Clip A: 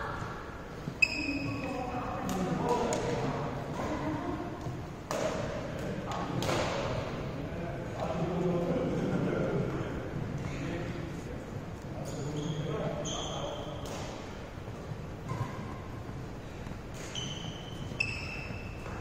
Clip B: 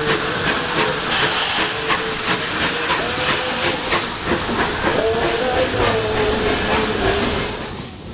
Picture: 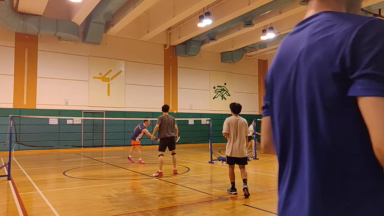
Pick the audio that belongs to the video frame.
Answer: A